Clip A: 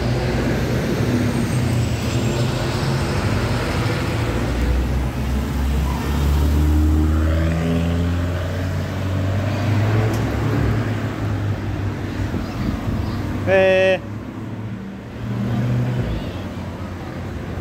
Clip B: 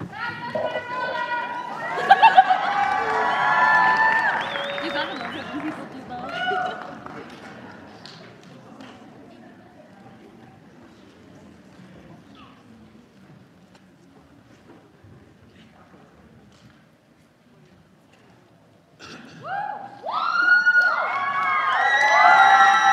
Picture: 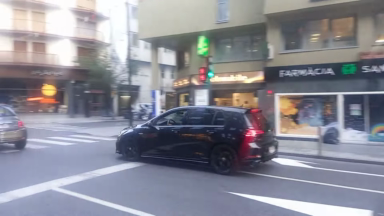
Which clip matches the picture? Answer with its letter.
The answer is A